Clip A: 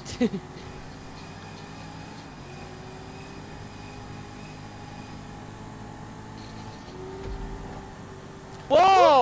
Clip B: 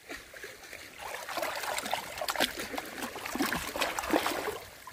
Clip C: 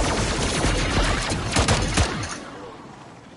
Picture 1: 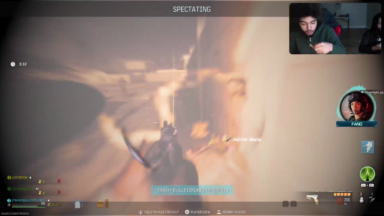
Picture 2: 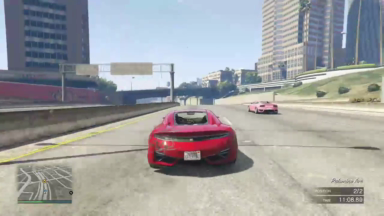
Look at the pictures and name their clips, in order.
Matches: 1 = C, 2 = A